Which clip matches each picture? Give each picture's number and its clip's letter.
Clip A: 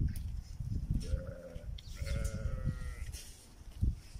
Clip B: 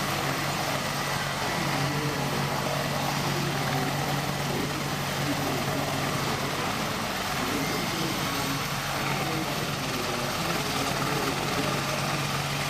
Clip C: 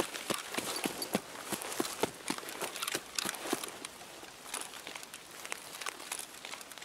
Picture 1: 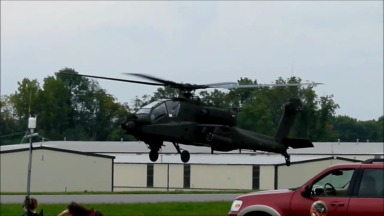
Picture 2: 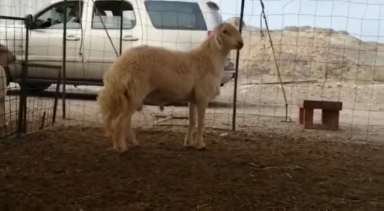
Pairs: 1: B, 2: A